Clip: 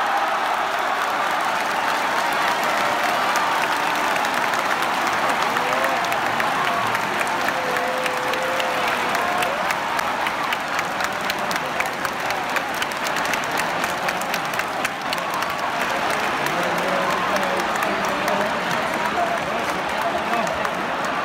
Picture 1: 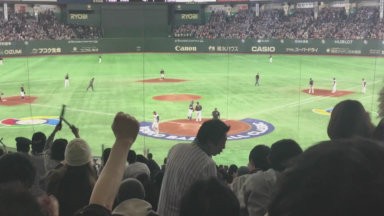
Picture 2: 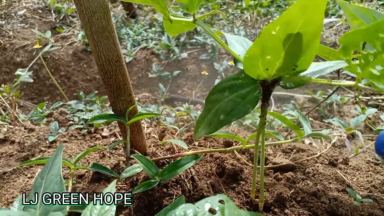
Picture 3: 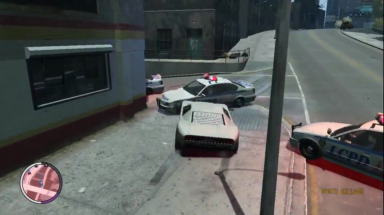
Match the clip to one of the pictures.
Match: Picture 1